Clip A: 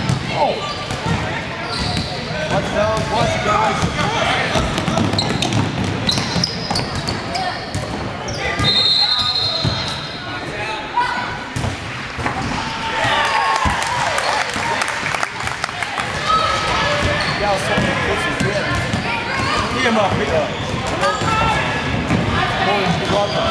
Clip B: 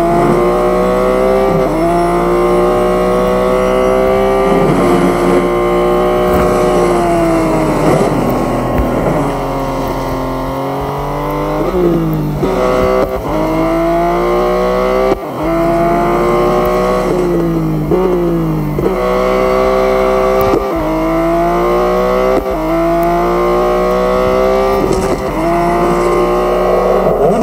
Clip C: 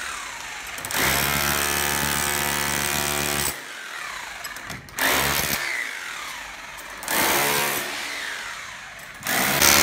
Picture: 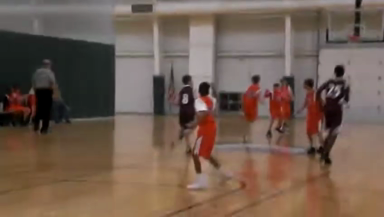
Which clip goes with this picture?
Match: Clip A